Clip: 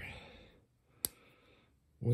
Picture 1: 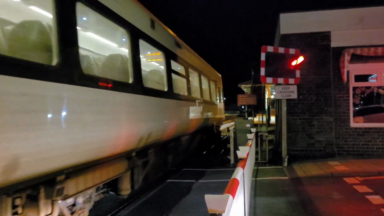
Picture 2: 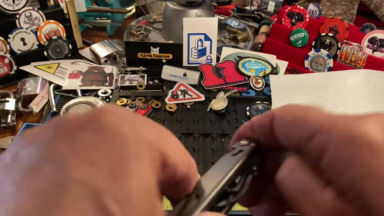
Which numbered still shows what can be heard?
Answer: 2